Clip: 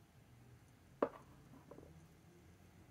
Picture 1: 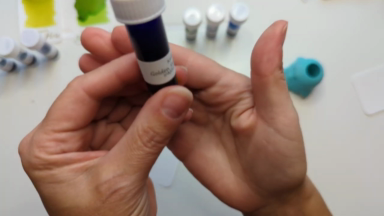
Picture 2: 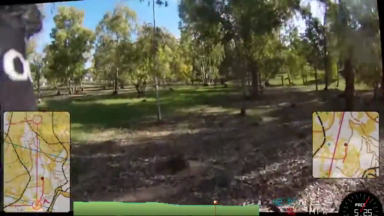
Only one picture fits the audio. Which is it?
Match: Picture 1